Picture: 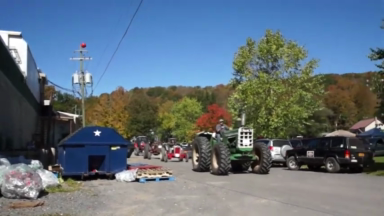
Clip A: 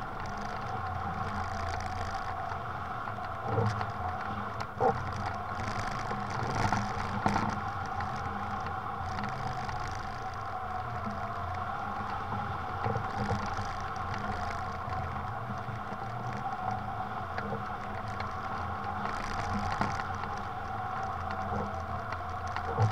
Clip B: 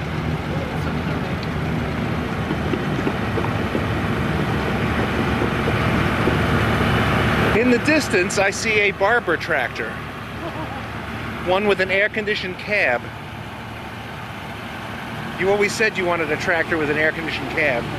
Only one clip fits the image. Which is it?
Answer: B